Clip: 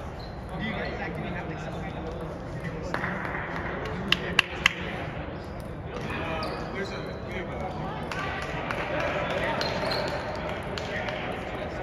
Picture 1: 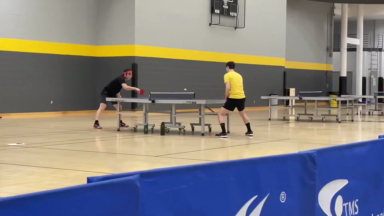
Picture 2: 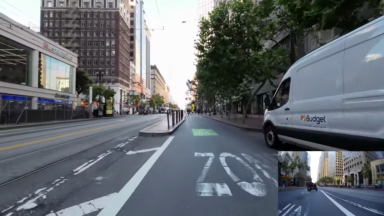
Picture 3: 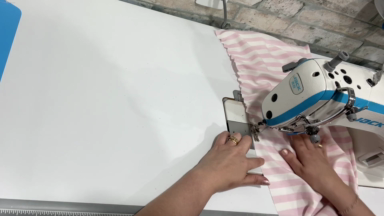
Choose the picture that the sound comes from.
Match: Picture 1